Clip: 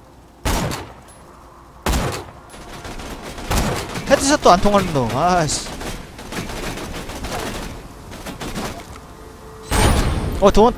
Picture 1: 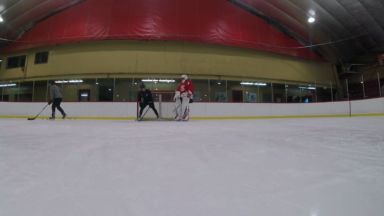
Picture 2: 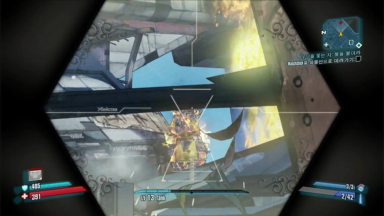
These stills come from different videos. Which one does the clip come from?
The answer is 2